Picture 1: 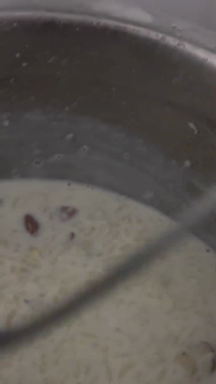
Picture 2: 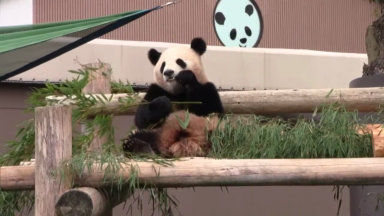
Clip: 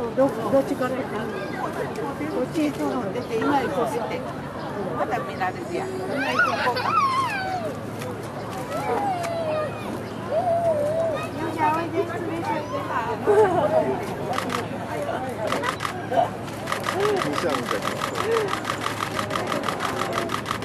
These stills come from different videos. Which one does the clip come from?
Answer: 2